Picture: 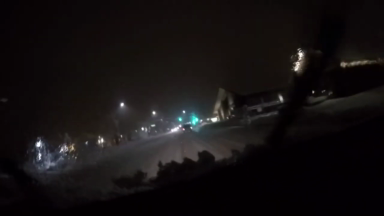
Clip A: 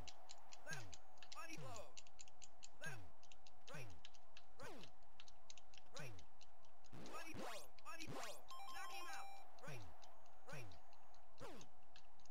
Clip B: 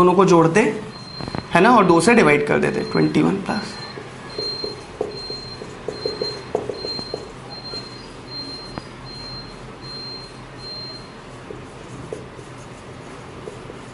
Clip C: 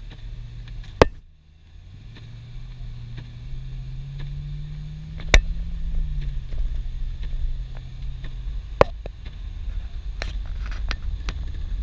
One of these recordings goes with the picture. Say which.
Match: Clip C